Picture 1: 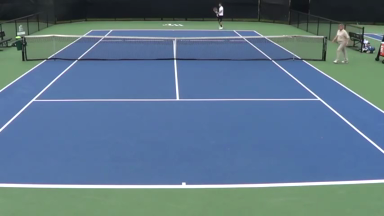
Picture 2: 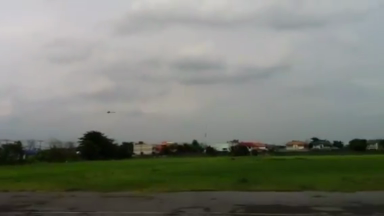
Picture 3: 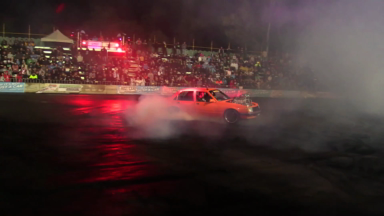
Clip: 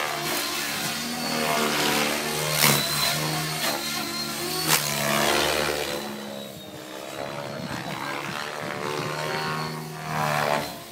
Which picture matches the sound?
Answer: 2